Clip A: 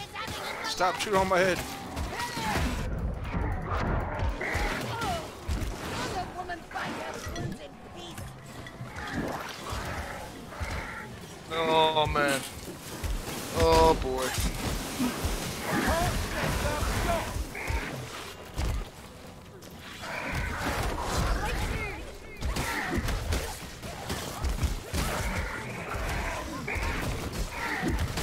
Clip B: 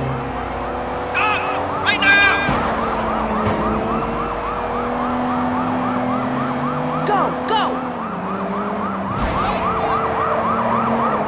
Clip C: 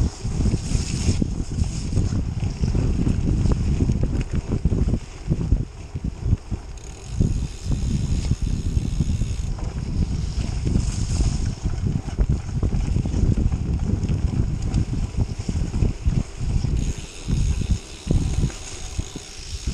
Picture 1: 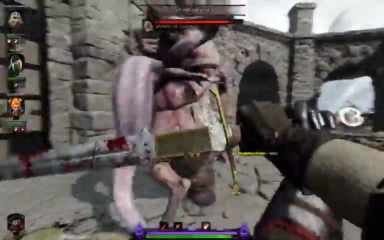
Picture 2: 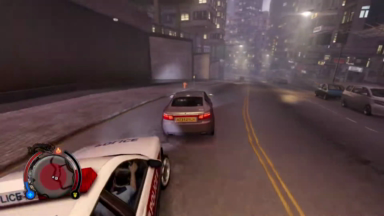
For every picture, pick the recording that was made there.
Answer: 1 A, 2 B